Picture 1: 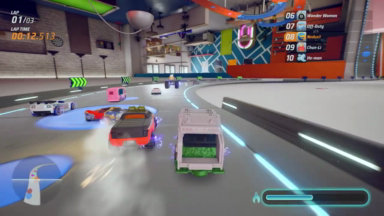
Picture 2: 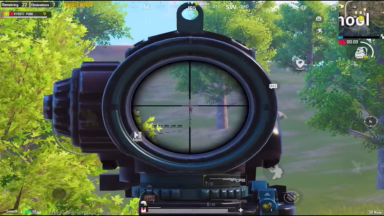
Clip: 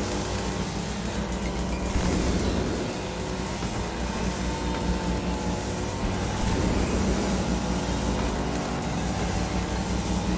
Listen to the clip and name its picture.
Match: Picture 1